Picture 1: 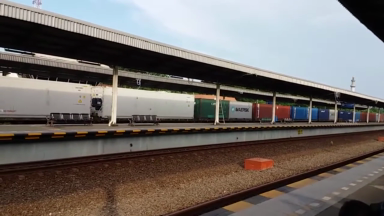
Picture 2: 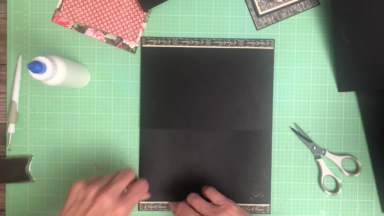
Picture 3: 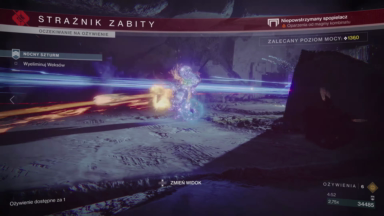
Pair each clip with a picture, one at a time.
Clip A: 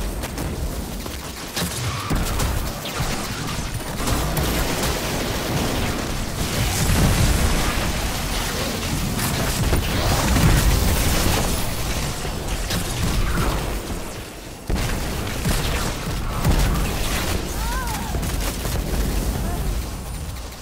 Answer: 3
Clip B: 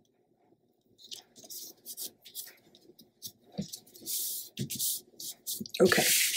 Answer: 2